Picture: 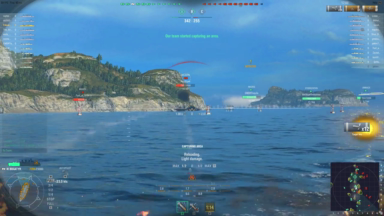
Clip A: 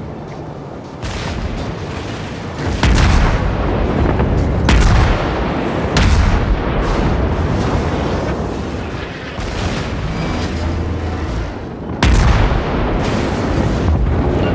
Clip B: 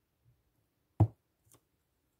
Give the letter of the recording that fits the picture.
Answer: A